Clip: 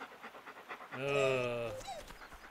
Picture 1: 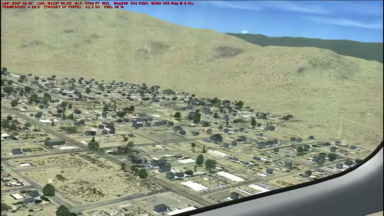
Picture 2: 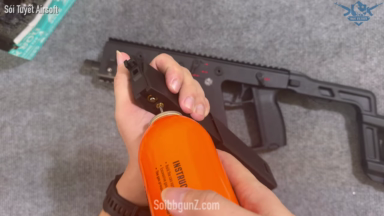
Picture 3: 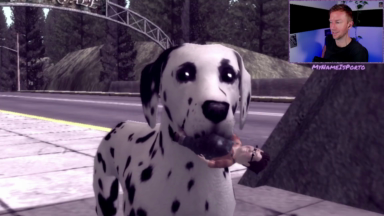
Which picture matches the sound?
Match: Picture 3